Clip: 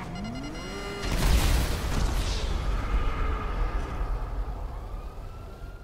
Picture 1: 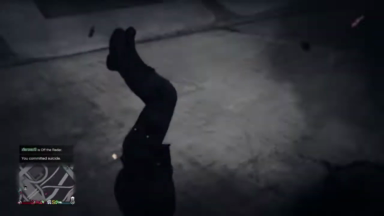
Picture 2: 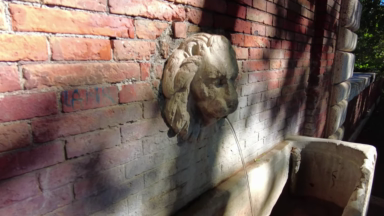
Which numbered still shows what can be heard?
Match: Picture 1